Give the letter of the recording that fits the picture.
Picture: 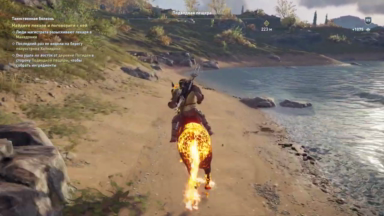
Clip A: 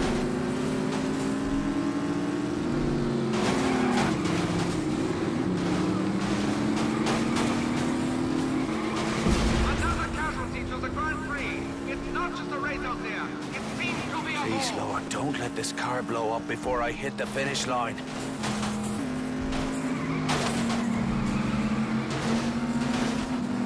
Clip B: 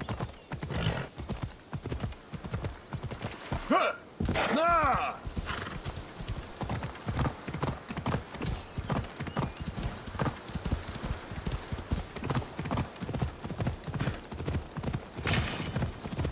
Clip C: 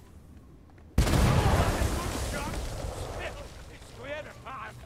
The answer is B